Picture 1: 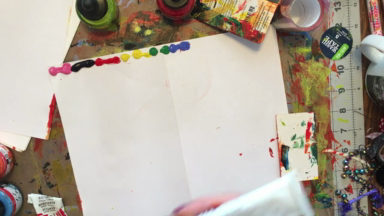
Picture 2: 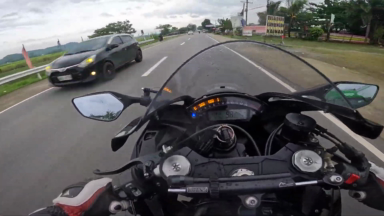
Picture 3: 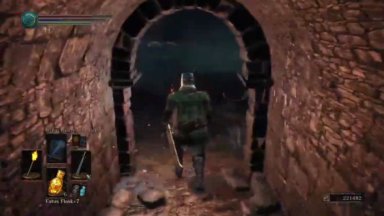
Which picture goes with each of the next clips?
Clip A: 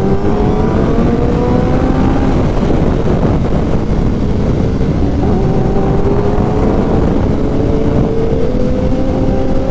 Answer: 2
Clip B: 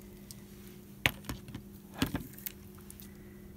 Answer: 1